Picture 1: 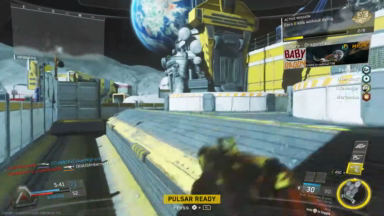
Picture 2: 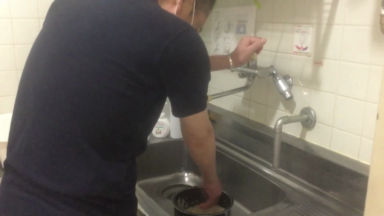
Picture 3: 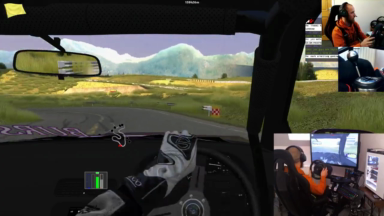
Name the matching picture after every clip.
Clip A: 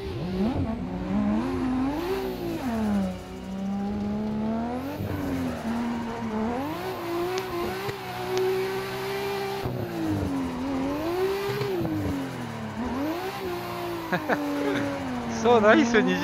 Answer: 3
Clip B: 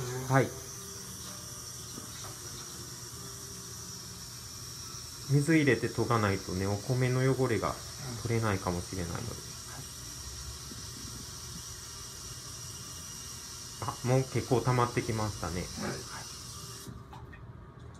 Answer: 2